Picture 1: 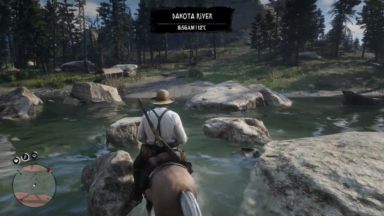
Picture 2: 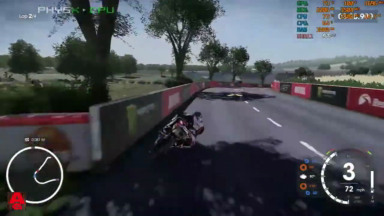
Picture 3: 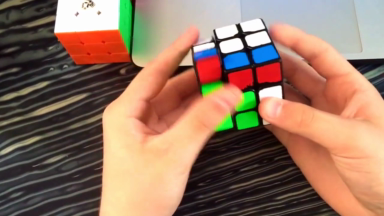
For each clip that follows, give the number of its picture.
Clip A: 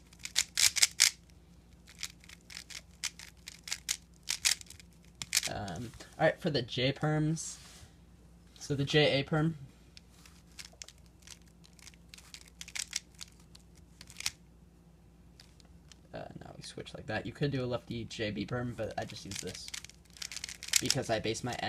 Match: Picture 3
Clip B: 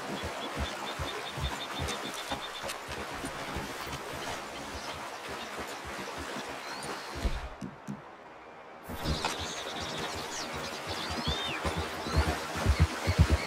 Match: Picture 1